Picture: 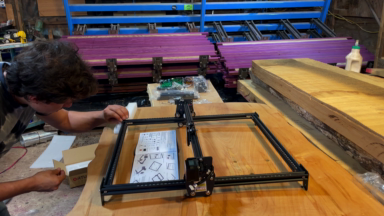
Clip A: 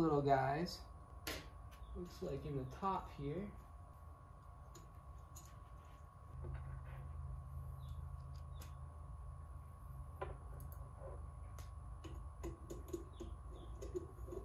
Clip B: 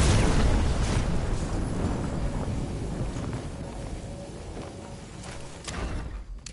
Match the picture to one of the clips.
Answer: A